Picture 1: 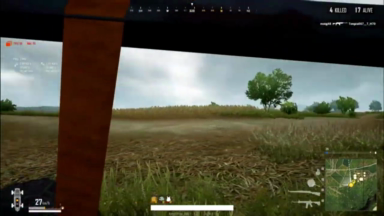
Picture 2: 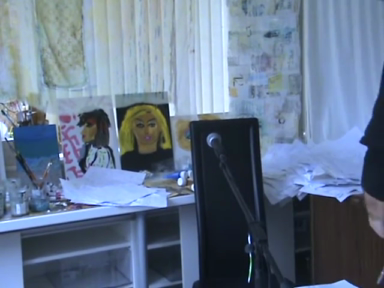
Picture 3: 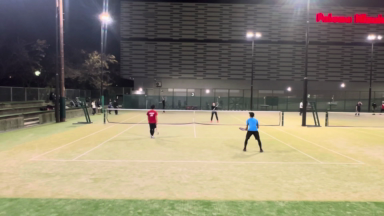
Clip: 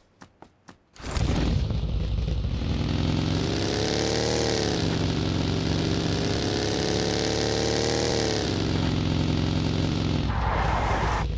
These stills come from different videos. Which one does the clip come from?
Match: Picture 1